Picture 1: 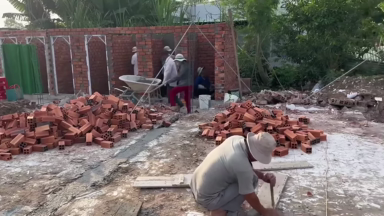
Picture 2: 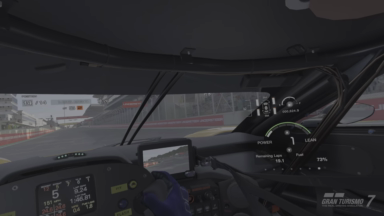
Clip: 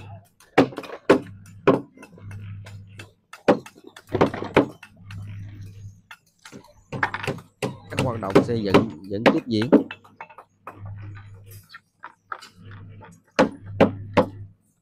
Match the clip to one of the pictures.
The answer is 1